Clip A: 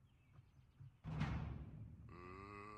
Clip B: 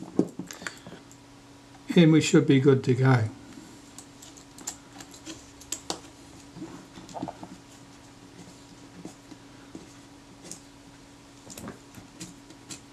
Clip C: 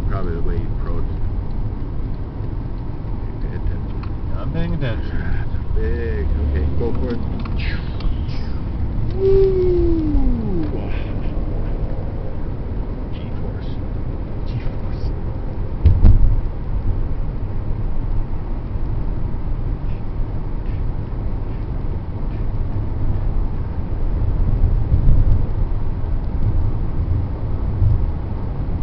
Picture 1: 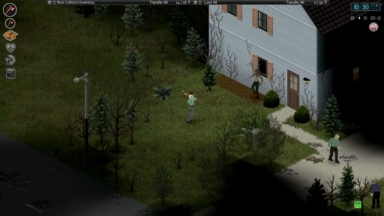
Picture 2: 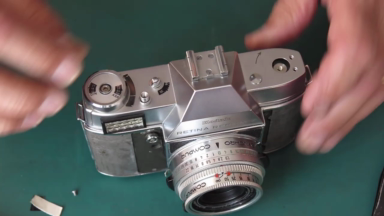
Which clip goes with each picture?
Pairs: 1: A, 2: B